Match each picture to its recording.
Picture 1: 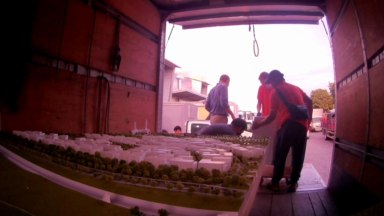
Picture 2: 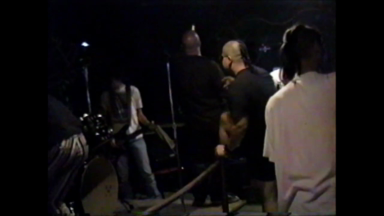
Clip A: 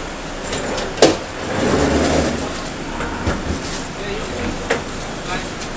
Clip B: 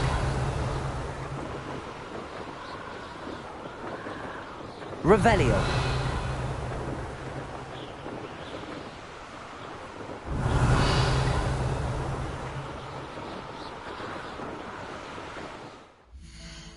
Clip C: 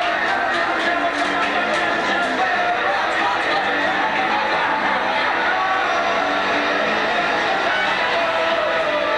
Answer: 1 A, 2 C